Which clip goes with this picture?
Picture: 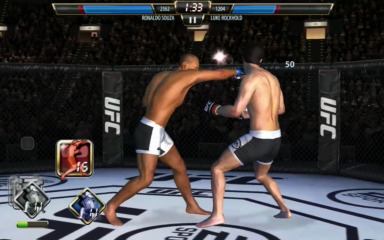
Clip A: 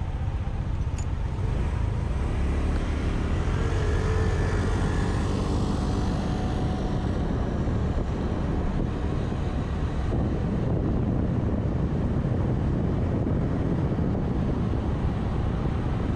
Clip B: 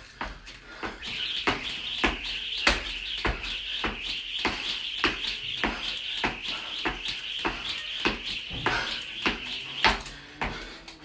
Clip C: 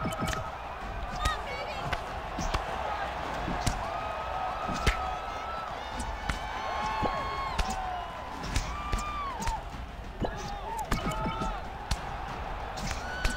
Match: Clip C